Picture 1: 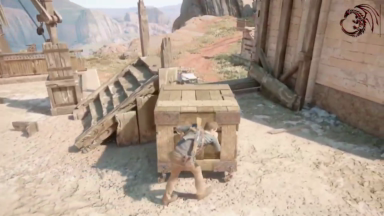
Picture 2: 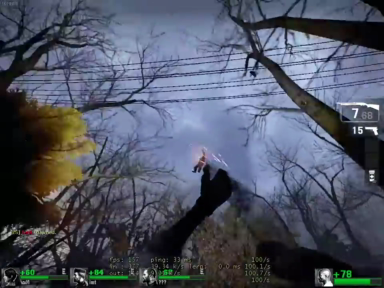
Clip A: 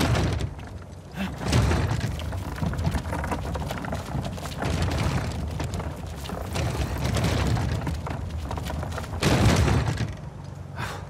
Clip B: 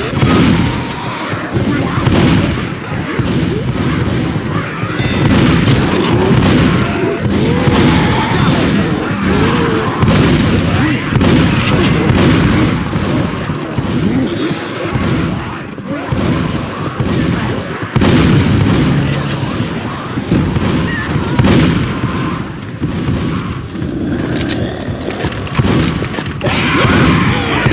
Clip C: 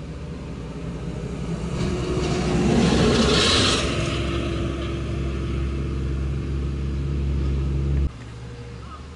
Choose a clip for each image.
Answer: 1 A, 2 B